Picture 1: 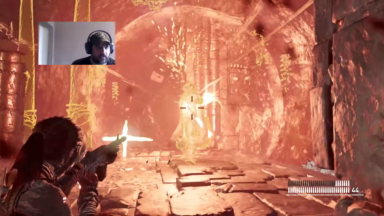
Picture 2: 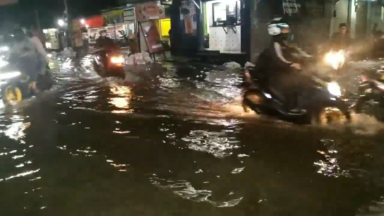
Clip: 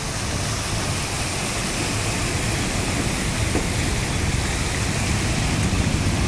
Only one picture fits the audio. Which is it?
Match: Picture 2